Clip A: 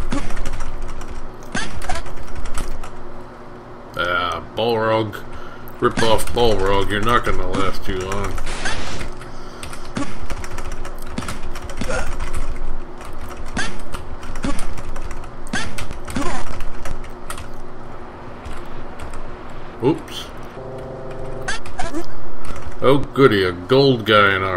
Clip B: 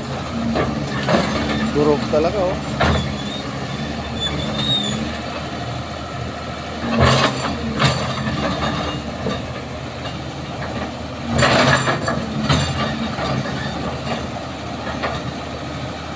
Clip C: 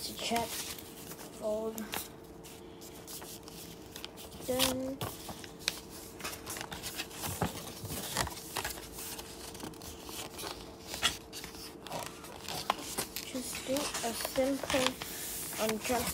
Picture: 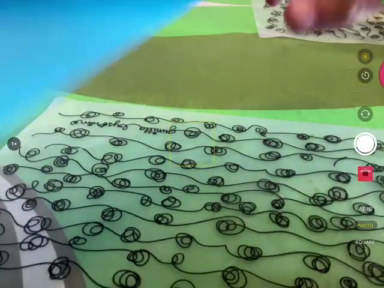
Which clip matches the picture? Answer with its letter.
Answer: C